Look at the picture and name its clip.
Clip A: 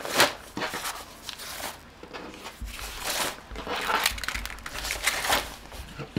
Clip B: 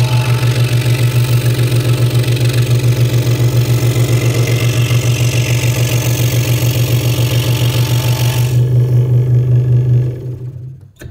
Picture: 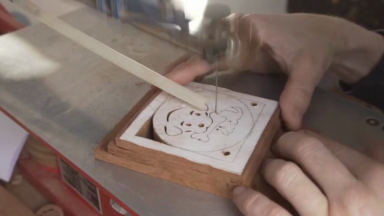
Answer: B